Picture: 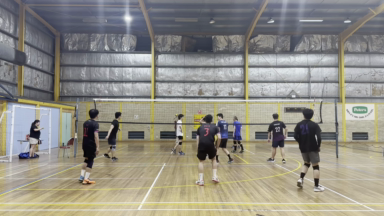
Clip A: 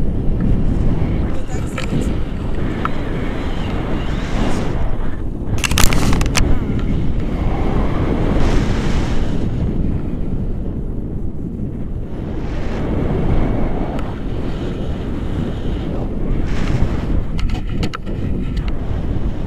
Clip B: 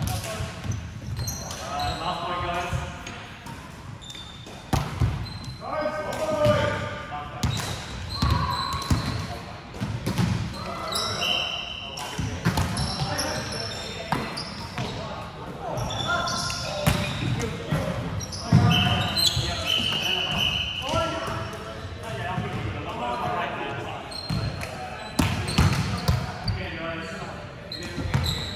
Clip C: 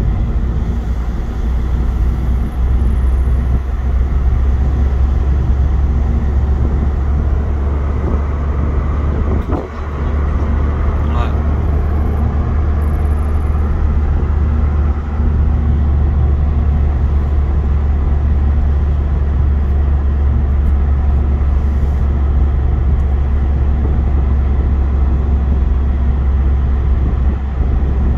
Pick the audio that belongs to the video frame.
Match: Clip B